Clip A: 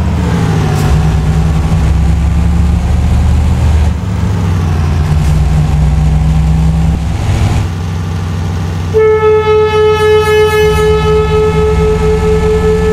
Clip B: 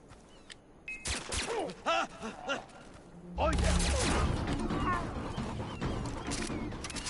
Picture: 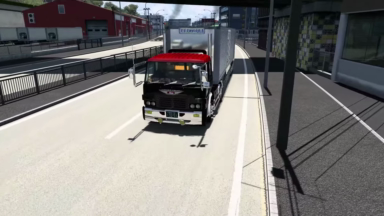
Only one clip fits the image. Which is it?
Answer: A